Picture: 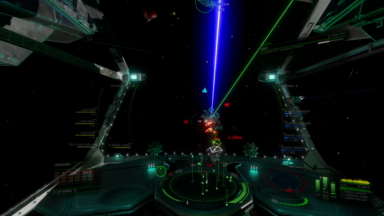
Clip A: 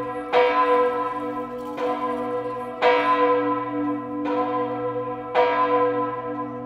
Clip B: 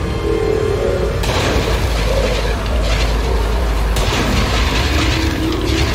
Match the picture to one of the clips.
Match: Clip B